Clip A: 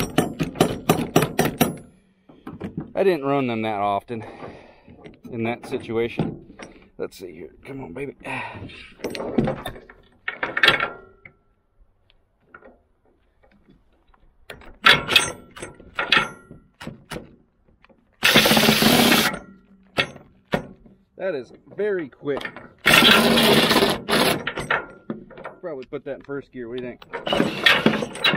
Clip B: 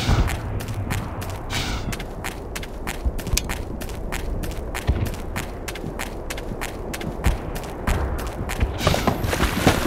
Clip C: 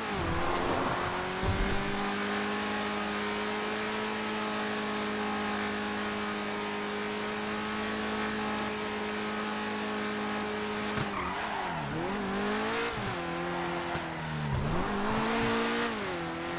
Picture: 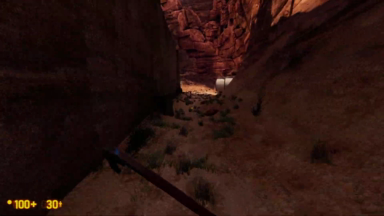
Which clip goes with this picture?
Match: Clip B